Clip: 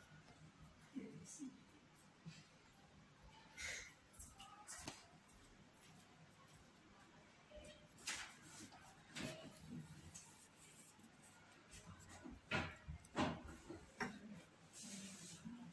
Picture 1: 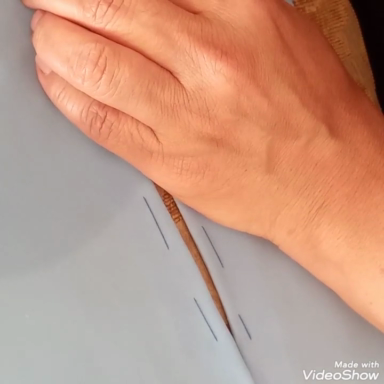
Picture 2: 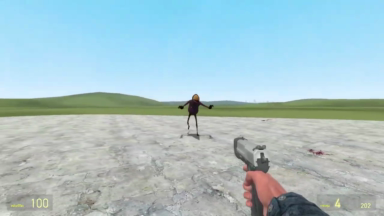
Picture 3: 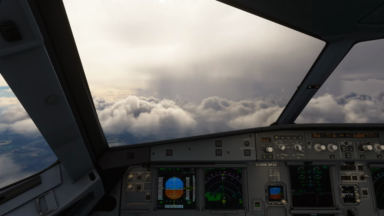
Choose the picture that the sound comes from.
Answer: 1